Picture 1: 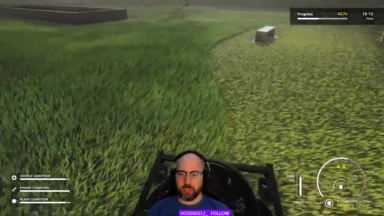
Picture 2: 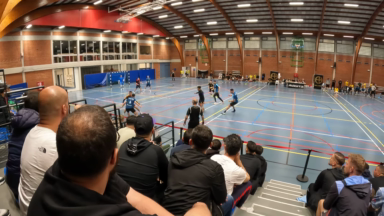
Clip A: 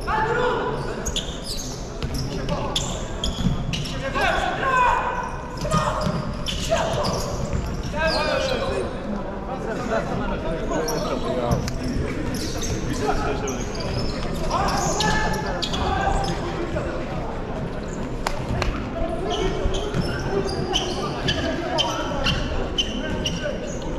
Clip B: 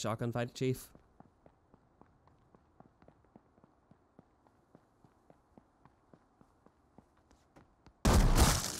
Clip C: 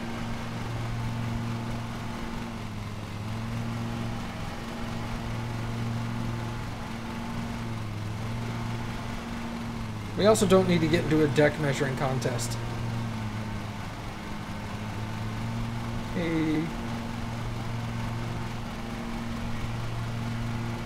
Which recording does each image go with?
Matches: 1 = C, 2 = A